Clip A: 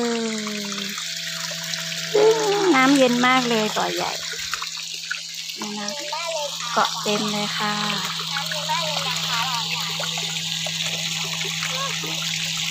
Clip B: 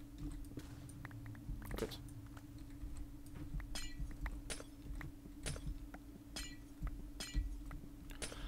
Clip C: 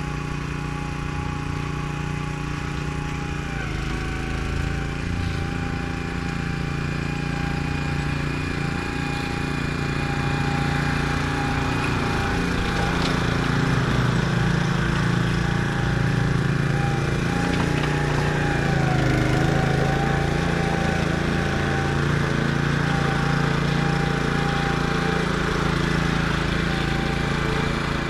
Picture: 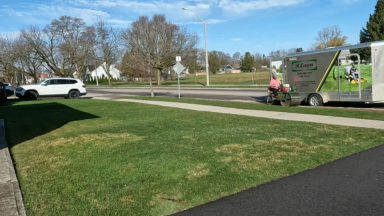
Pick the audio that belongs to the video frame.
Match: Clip C